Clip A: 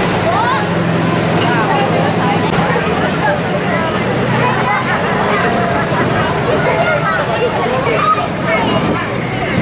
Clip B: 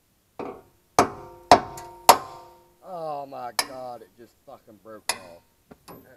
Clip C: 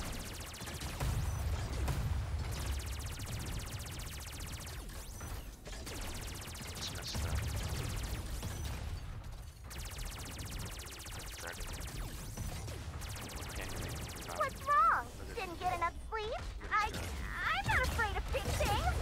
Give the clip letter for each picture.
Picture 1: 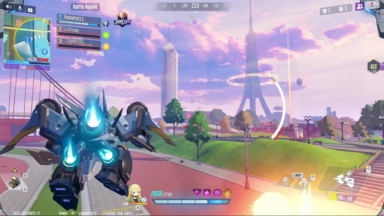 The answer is C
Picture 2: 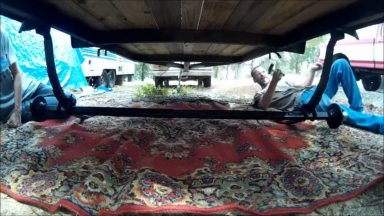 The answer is B